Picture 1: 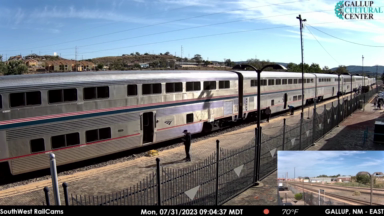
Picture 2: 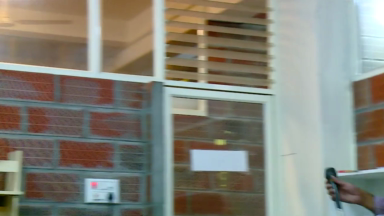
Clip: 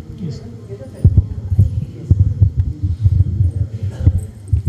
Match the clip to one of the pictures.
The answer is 2